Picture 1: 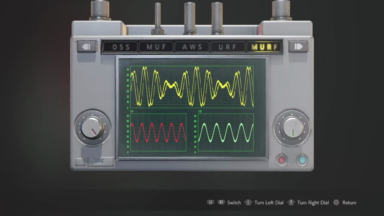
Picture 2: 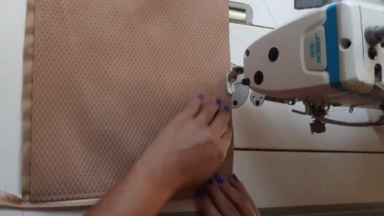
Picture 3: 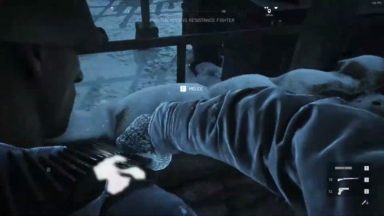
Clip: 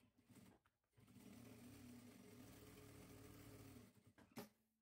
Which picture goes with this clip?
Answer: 2